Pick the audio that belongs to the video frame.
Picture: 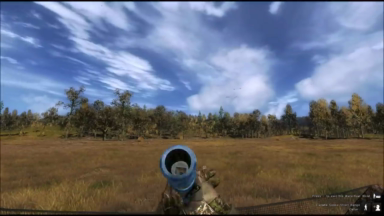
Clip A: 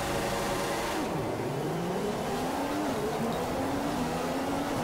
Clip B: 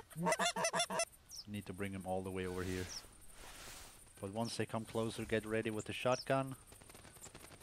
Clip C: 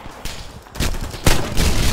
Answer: B